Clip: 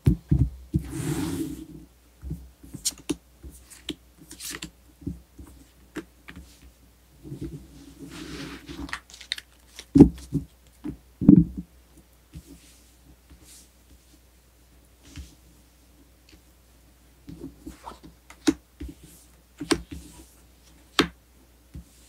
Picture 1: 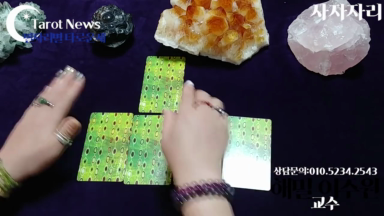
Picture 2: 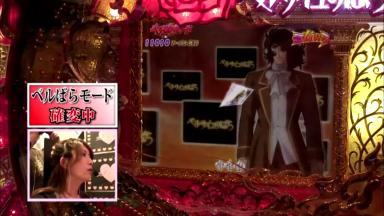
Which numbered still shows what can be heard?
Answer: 1